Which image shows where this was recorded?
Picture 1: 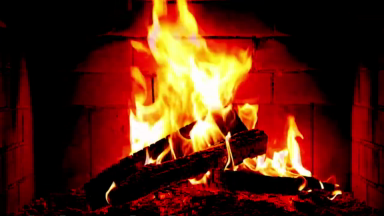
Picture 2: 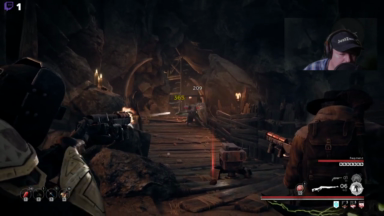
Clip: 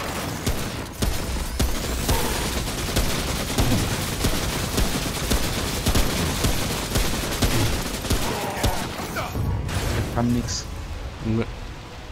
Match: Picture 2